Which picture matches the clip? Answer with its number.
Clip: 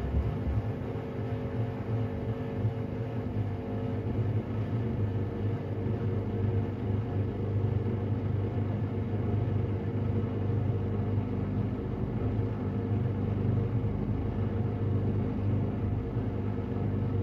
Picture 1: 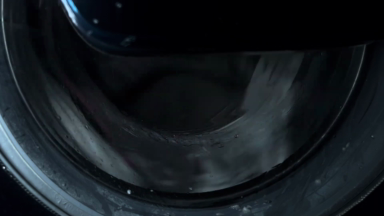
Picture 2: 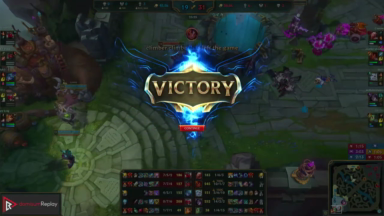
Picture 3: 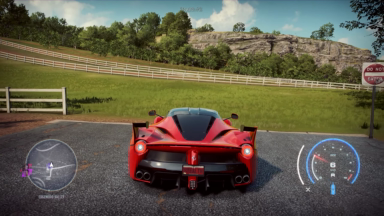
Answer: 1